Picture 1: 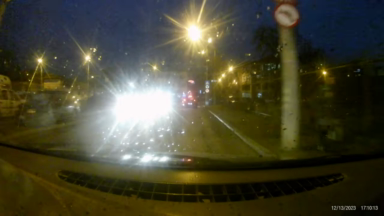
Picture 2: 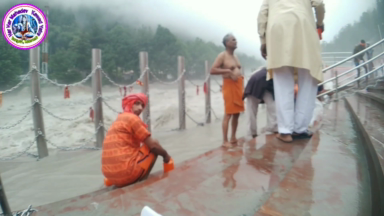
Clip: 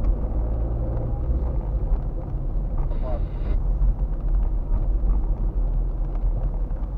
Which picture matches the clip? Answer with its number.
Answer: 1